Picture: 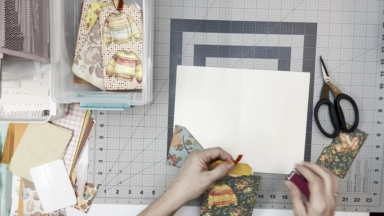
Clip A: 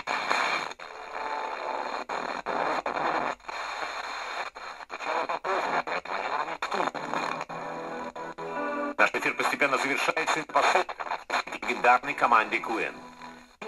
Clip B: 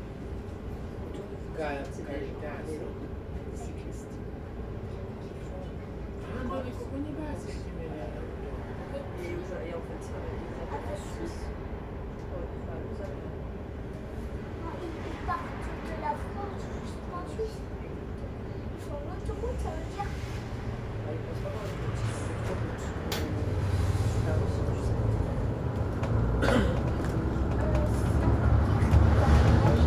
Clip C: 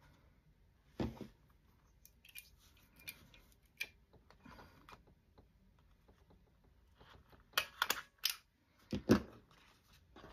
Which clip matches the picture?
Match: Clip C